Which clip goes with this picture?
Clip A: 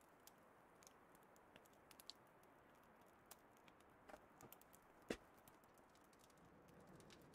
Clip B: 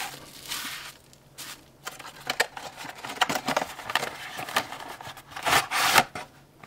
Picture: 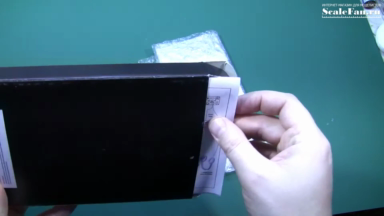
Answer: B